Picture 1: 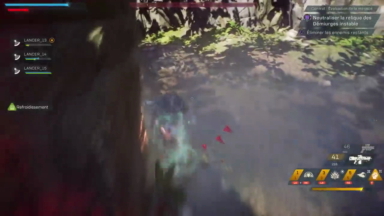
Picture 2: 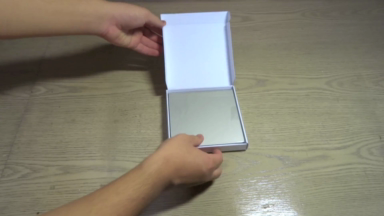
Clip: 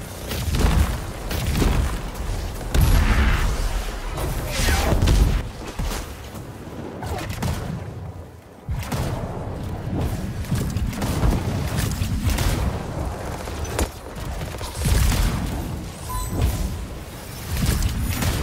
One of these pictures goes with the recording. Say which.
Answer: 1